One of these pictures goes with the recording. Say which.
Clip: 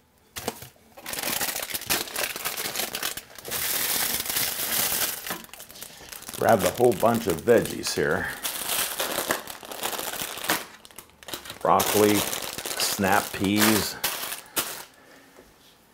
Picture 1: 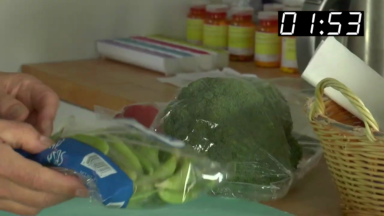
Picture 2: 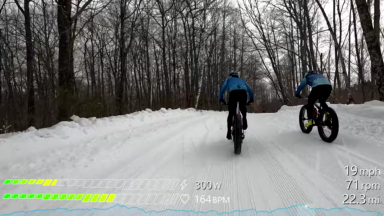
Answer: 1